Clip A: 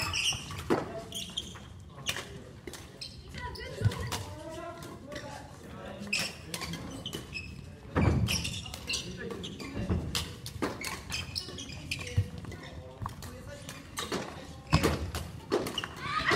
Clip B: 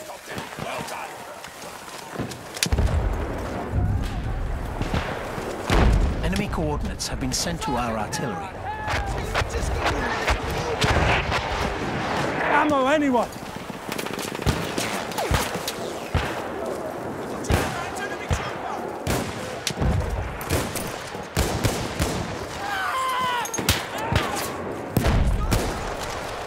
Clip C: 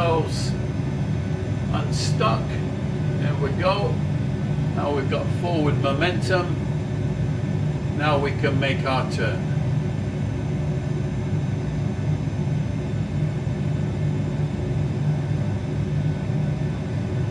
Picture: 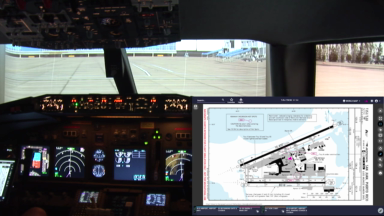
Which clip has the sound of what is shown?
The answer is C